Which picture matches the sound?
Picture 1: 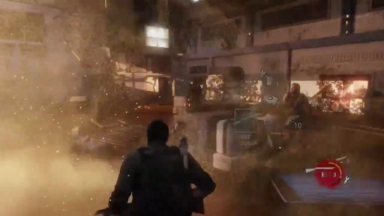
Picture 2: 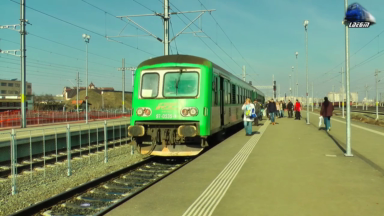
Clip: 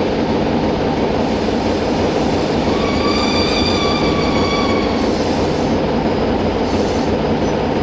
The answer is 2